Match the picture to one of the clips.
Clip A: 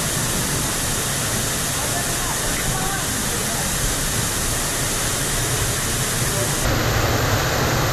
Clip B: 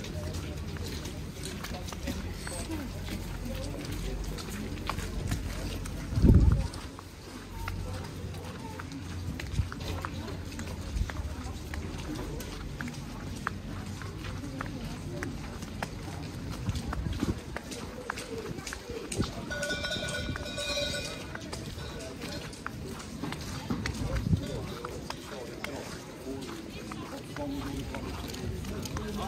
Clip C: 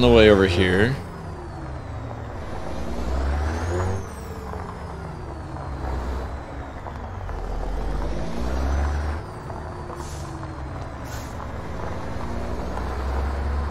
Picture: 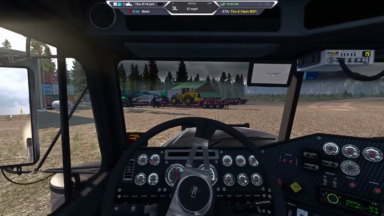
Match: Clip C